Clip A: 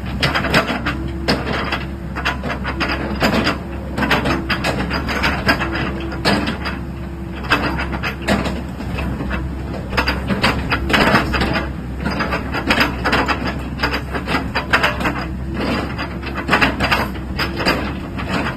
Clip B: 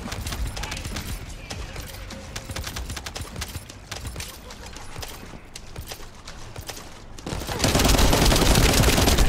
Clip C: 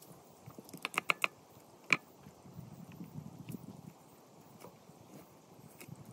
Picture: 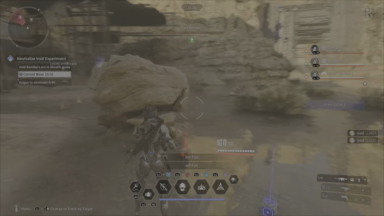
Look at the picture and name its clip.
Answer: B